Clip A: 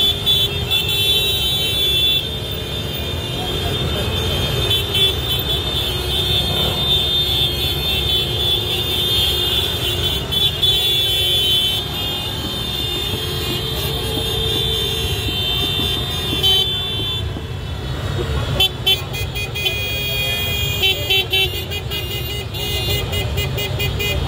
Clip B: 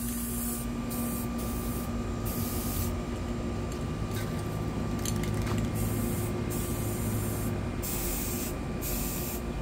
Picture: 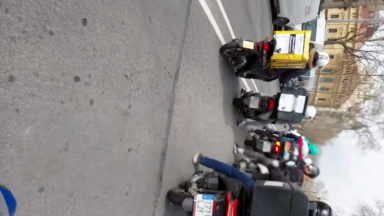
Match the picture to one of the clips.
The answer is A